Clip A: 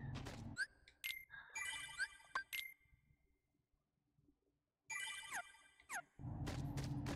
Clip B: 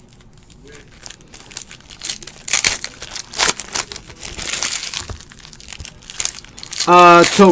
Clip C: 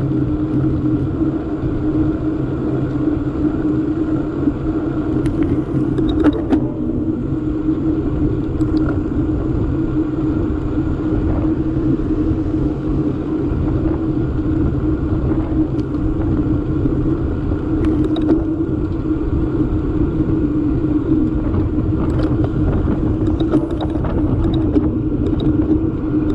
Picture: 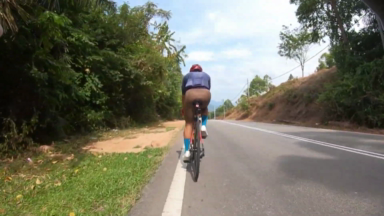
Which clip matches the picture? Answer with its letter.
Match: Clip C